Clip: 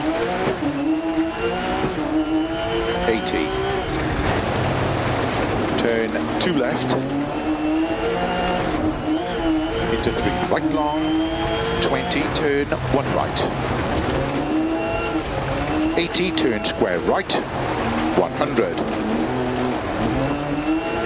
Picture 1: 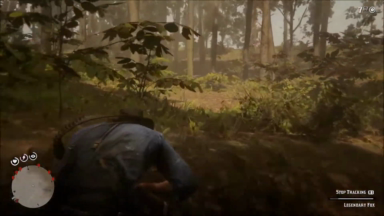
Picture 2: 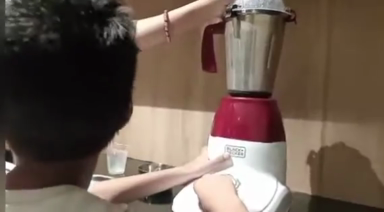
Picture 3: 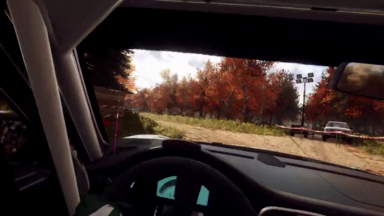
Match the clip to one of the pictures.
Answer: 3